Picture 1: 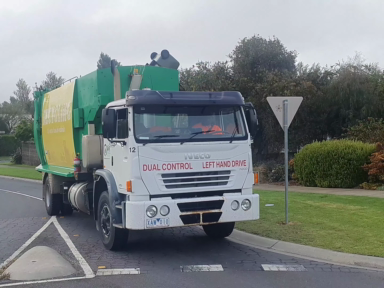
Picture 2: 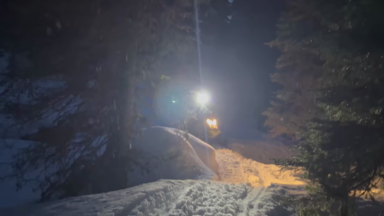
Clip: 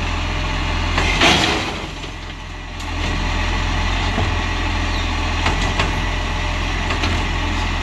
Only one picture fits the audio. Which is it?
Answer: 1